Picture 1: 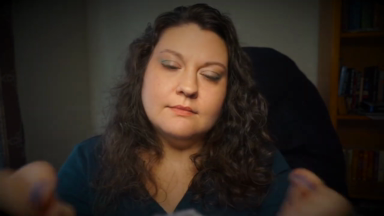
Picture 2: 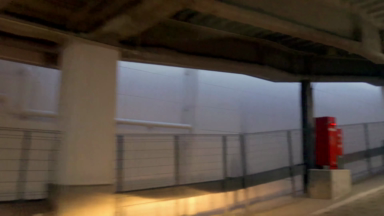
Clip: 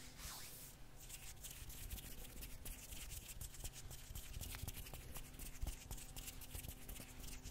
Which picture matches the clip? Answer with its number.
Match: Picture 1